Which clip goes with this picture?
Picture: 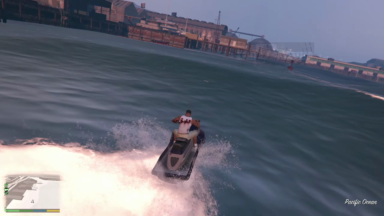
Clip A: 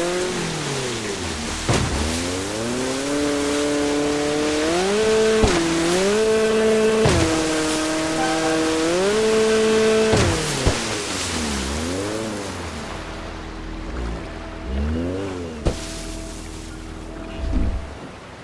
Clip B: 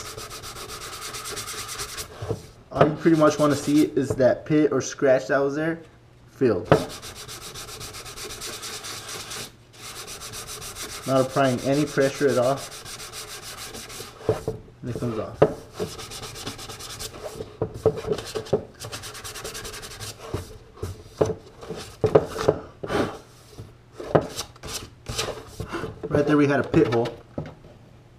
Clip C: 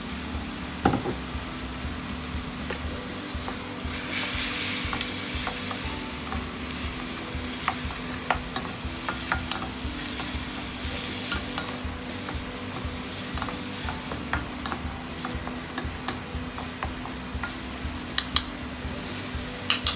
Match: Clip A